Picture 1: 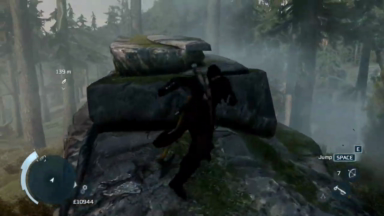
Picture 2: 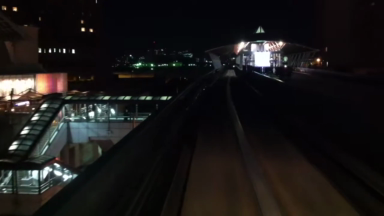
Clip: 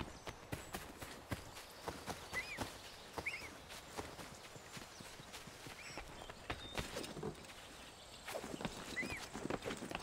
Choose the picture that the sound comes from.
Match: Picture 1